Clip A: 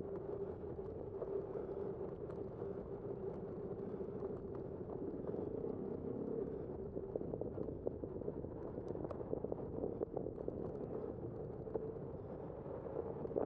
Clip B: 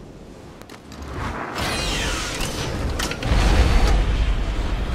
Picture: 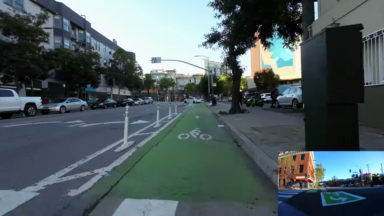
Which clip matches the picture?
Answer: A